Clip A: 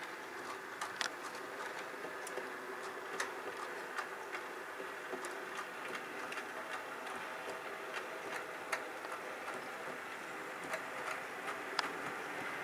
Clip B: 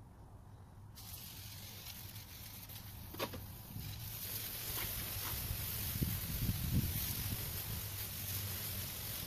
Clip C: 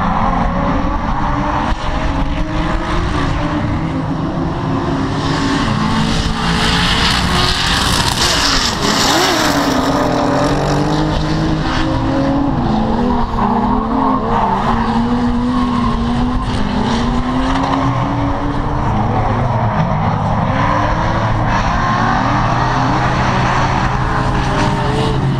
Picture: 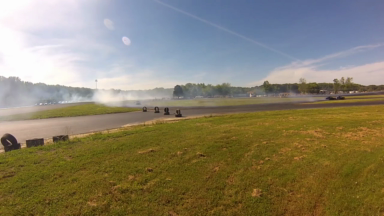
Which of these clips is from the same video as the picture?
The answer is C